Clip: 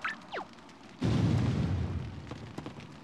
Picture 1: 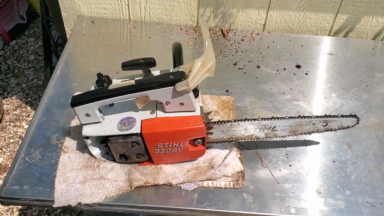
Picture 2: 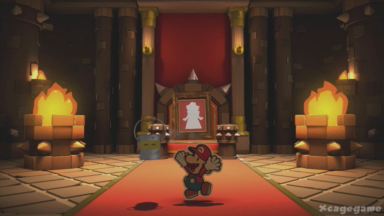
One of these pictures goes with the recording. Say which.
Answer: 2